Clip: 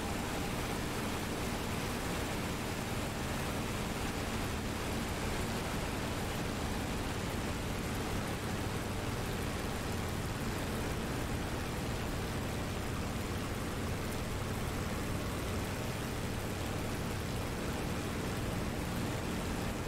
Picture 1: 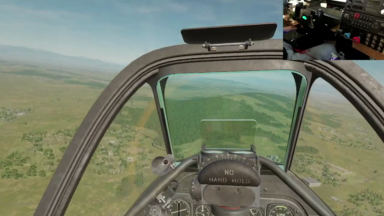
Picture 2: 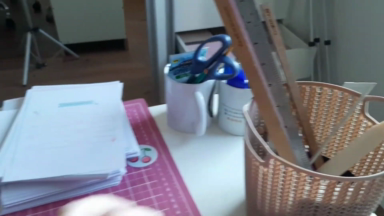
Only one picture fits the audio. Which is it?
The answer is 1